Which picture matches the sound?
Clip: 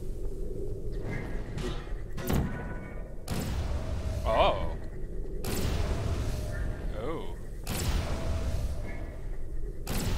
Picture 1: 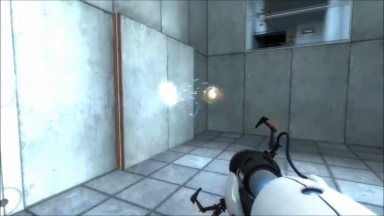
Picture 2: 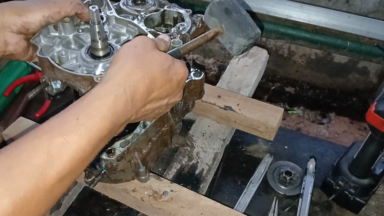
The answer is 1